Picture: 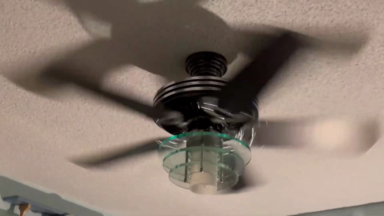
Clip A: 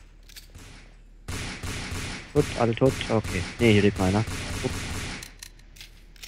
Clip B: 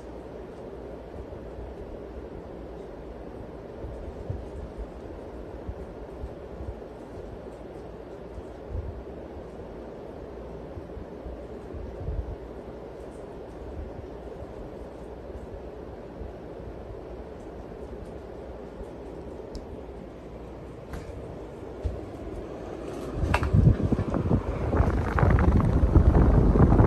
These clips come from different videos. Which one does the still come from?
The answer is B